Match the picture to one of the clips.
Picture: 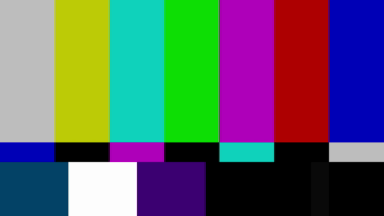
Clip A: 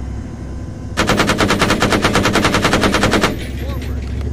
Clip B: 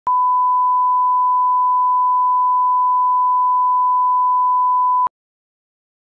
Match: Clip B